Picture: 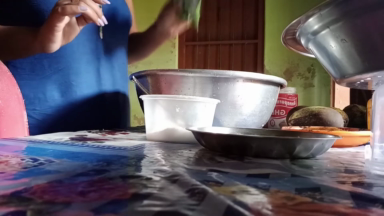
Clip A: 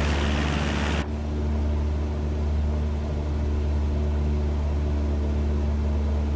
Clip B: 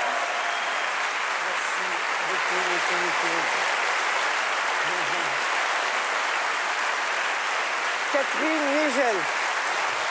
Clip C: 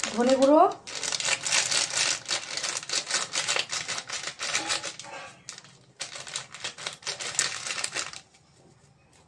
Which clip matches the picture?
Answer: C